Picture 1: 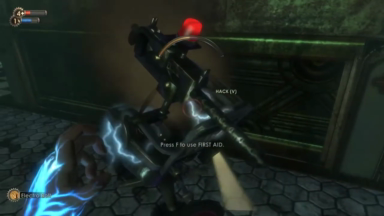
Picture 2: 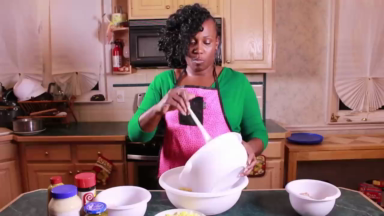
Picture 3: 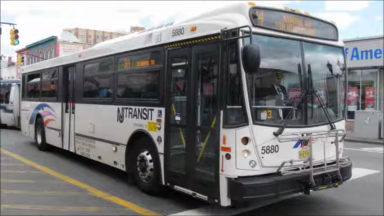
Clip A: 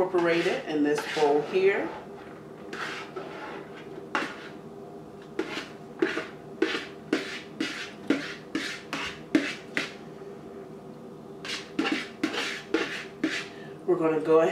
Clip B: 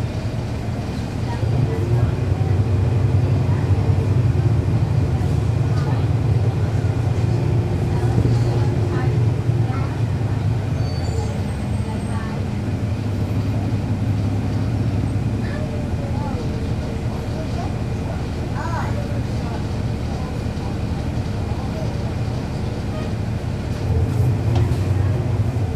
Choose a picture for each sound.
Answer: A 2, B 3